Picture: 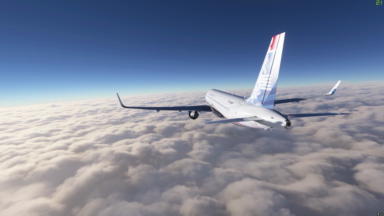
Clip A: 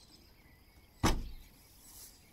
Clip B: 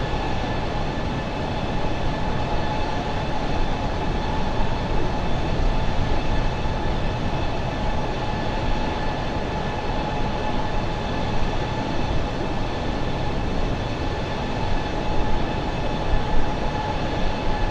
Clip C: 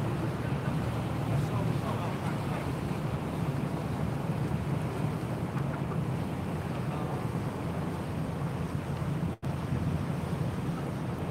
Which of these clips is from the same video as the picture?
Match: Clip B